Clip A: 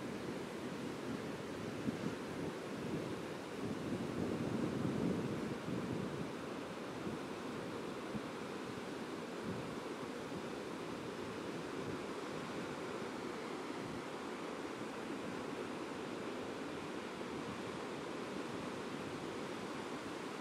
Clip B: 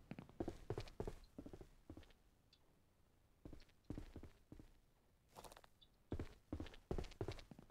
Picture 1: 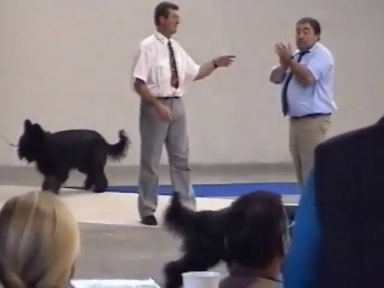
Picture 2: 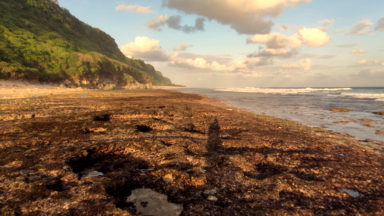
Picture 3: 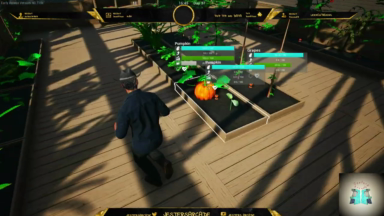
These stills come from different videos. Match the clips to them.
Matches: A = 2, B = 3